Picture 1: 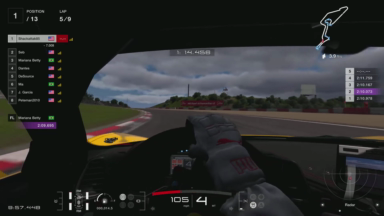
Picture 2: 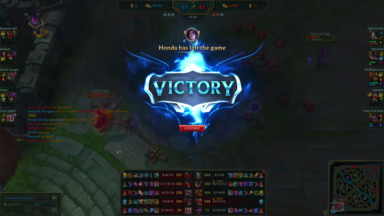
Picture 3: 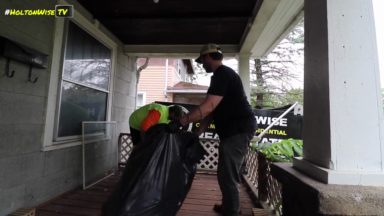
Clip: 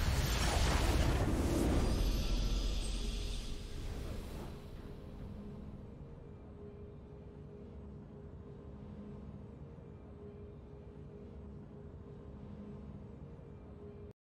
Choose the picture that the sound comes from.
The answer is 2